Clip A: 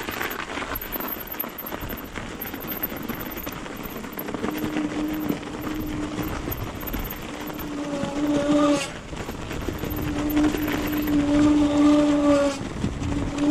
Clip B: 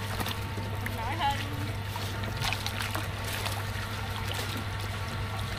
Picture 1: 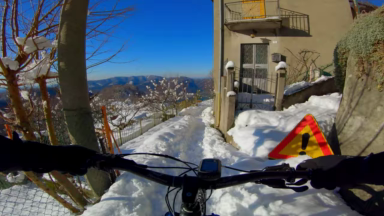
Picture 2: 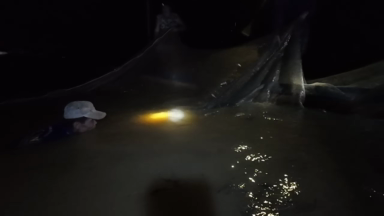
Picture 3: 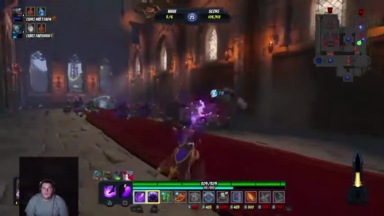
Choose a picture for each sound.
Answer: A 1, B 2